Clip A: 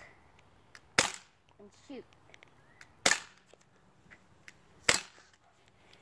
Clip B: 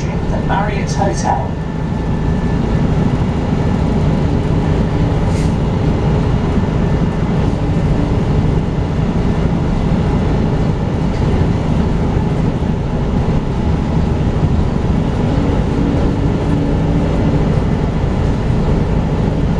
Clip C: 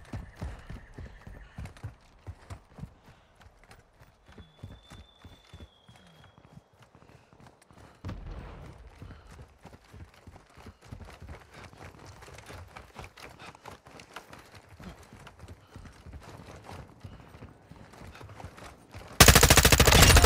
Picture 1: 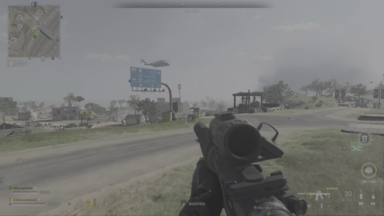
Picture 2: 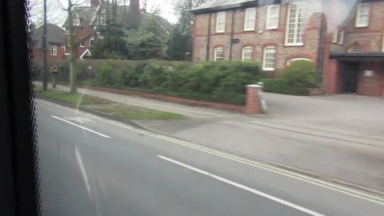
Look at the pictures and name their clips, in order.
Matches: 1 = C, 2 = B